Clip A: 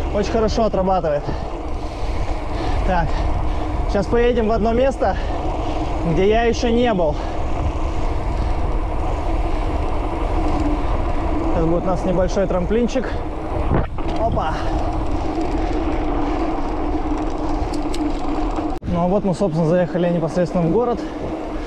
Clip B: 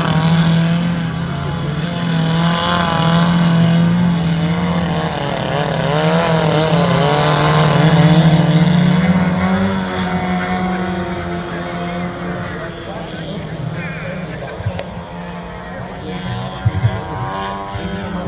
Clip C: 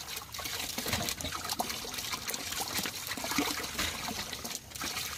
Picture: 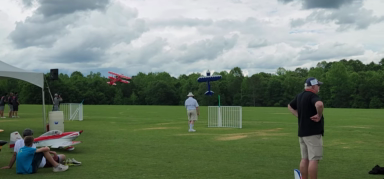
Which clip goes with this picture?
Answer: B